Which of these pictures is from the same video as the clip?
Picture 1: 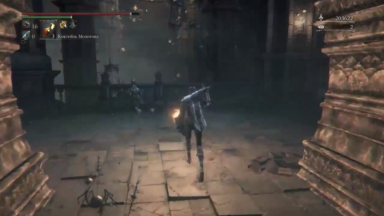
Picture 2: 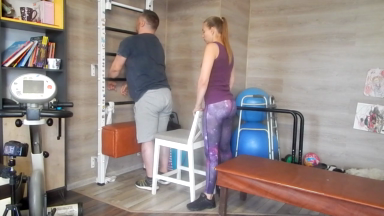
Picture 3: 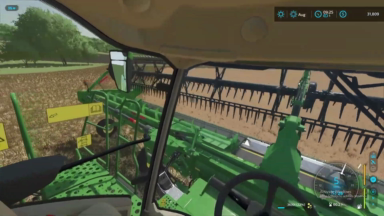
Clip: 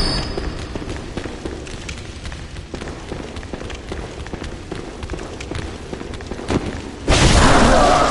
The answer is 1